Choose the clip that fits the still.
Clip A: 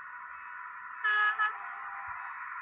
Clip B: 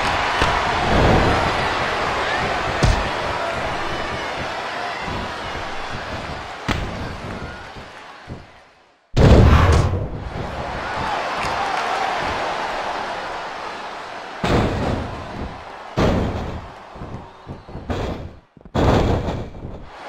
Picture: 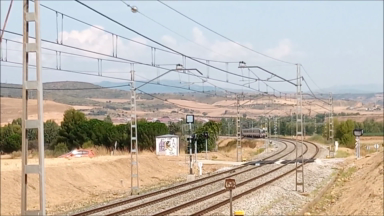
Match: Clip A